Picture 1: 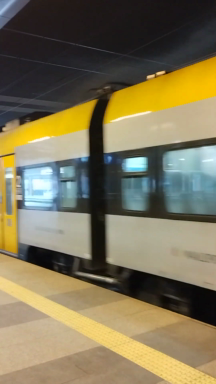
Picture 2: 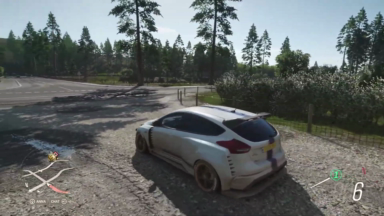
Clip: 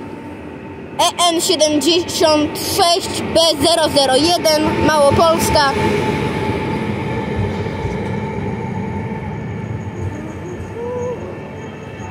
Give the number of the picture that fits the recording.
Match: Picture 1